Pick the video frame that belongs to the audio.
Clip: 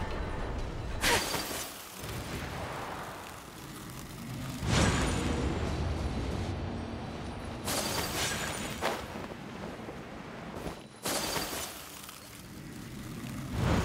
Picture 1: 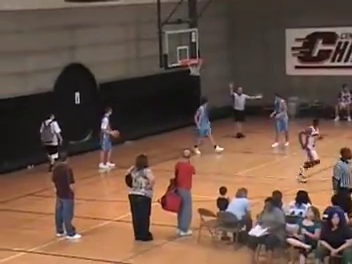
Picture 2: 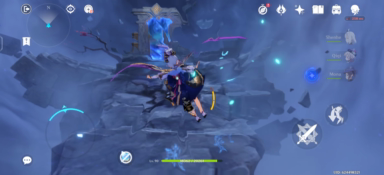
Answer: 2